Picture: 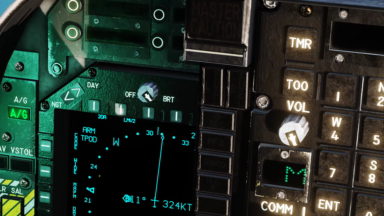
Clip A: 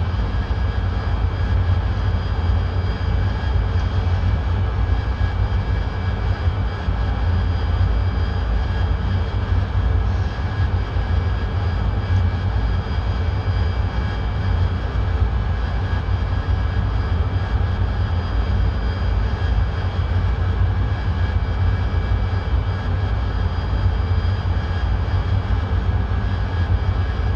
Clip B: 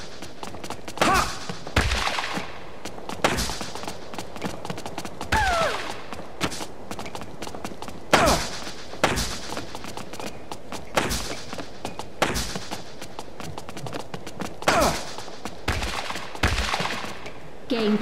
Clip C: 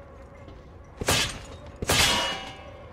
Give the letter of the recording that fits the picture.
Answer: A